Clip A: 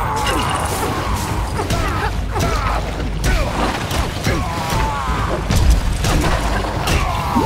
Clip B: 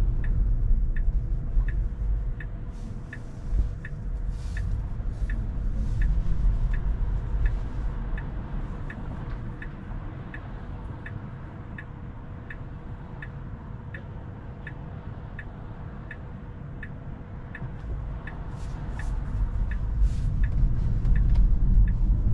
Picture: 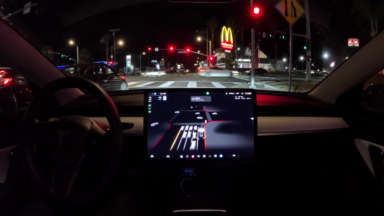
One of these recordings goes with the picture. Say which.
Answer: B